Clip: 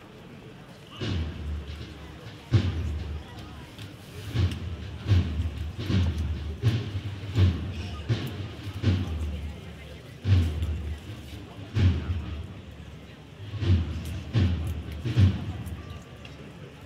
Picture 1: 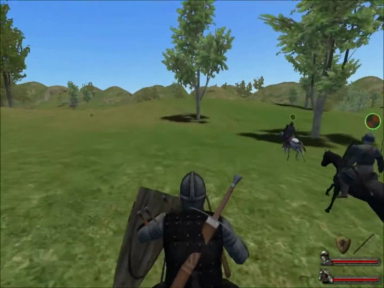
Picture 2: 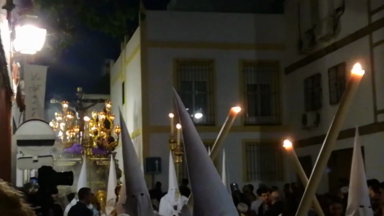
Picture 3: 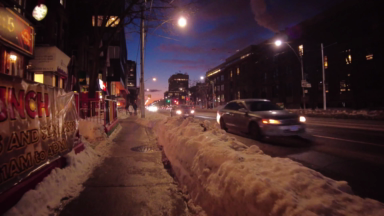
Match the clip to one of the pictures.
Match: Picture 2